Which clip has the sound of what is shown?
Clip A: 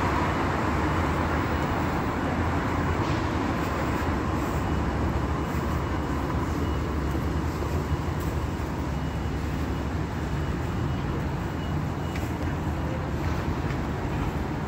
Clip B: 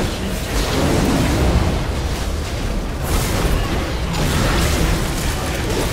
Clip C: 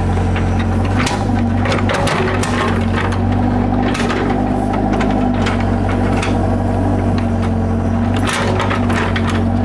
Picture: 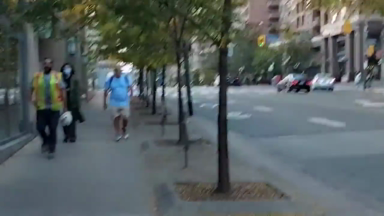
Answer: A